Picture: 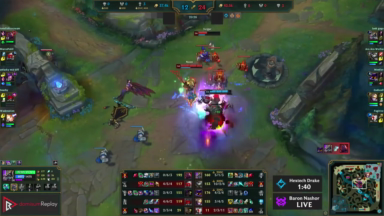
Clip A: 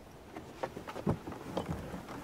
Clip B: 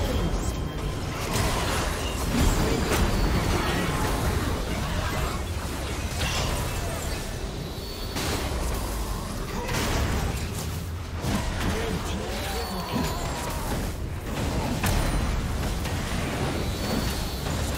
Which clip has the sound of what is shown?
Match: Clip B